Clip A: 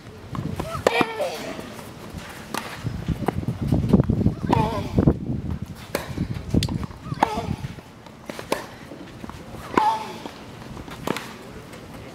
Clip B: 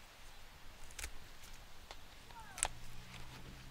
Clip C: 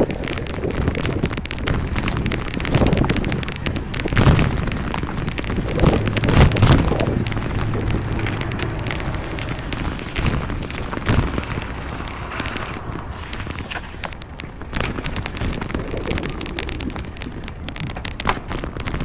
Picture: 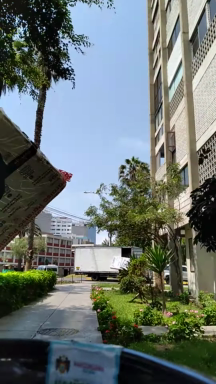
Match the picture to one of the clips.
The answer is C